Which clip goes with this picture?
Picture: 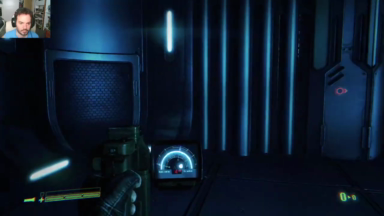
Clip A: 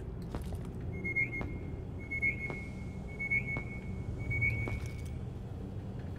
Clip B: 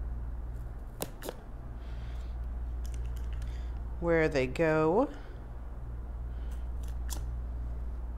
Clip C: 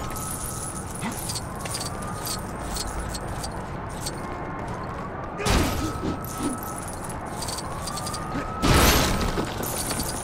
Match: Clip A